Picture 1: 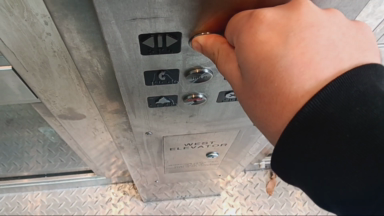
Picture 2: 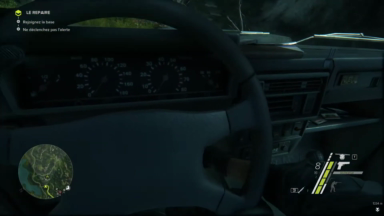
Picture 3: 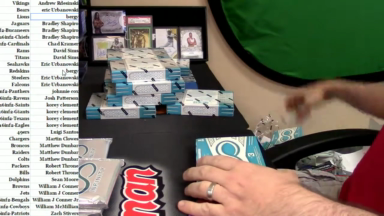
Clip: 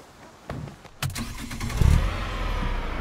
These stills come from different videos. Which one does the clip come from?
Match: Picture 2